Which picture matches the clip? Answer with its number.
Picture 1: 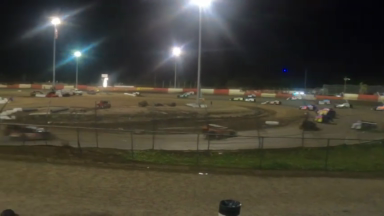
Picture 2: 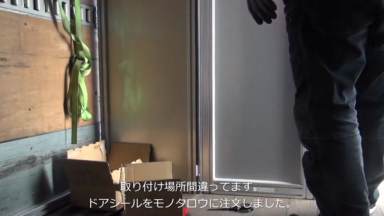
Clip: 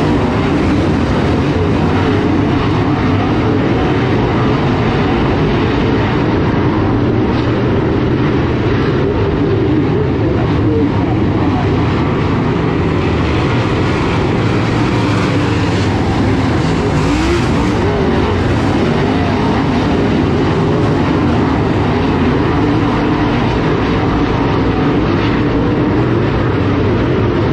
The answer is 1